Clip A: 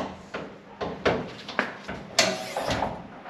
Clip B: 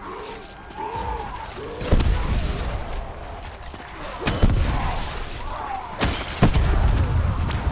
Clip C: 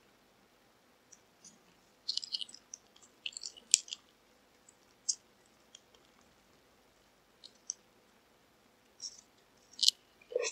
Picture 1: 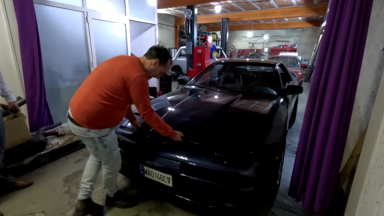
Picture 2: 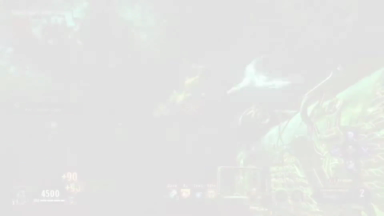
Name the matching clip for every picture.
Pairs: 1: A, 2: B